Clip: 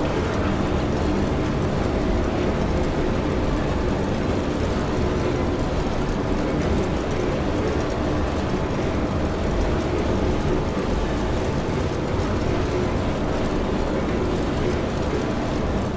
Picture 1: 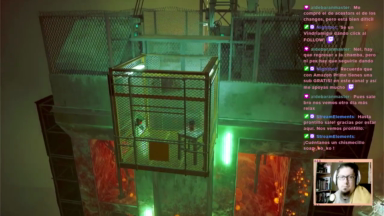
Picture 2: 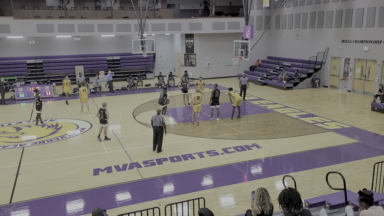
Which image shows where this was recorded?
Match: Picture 1